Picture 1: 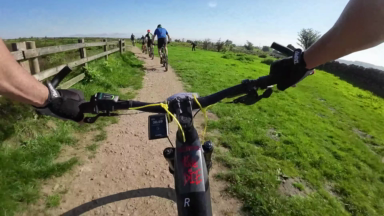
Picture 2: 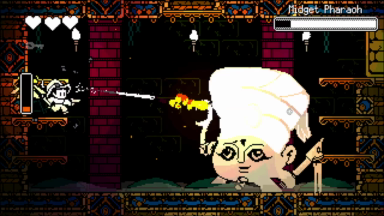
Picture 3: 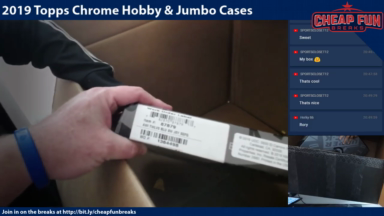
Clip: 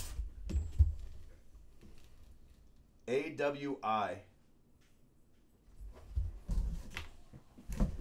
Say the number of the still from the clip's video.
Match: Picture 3